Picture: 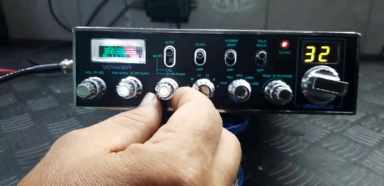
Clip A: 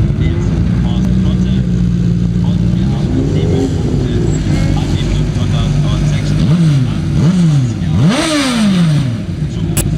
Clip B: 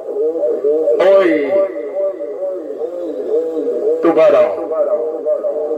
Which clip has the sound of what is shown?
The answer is B